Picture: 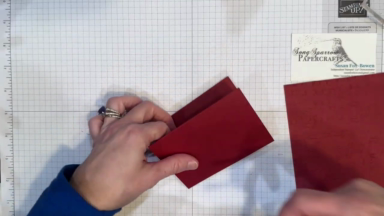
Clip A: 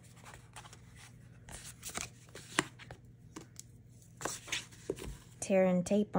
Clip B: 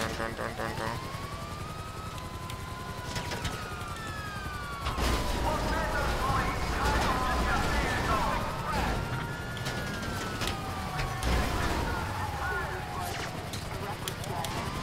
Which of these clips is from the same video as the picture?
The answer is A